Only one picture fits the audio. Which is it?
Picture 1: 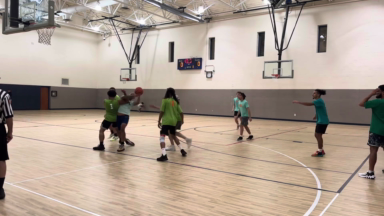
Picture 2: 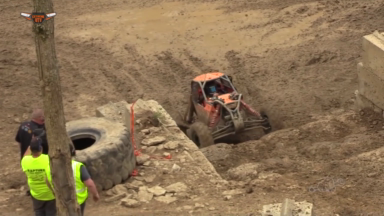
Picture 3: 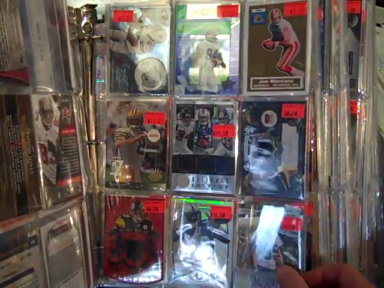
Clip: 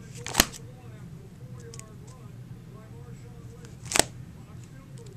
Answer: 3